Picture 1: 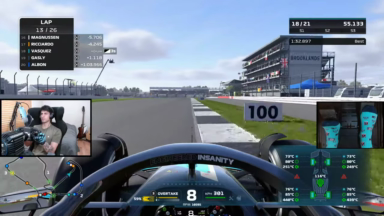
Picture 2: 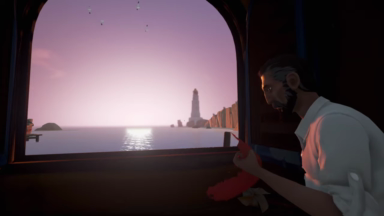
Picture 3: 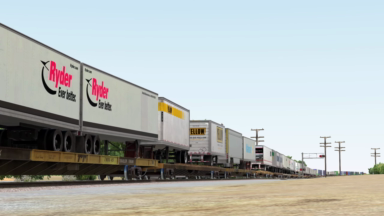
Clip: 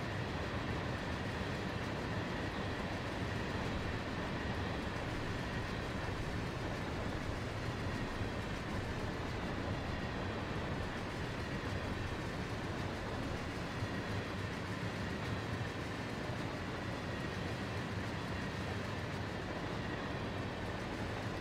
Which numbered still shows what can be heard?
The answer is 3